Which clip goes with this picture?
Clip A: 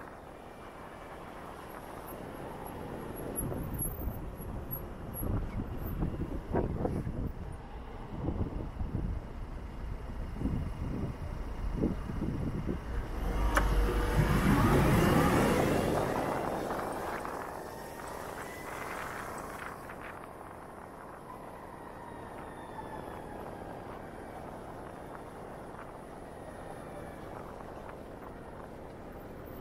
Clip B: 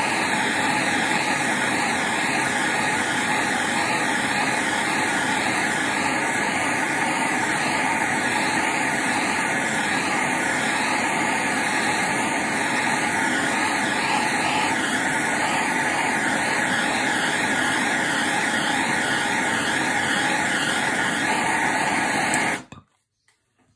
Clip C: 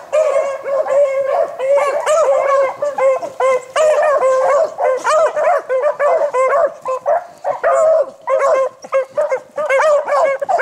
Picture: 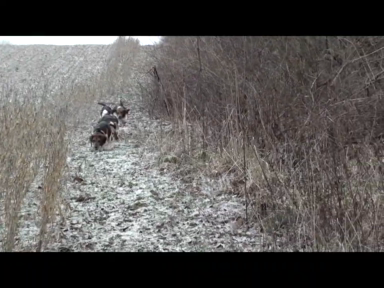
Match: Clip C